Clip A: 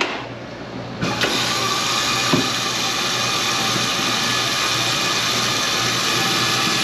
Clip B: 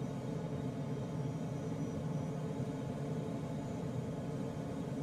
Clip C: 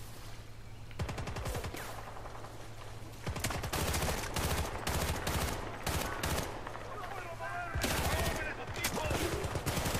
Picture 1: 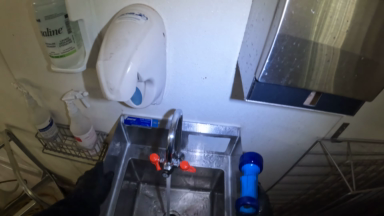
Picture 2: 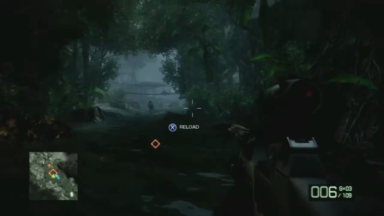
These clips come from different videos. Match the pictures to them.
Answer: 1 A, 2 C